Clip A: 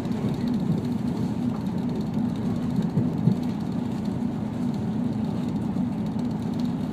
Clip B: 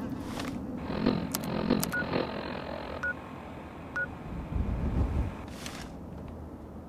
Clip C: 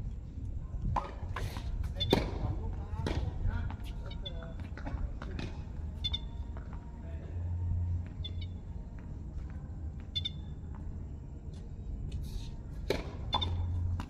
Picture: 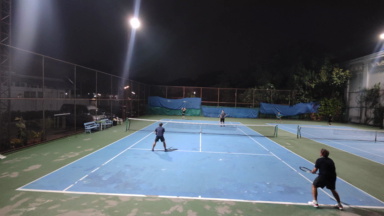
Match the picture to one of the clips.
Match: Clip C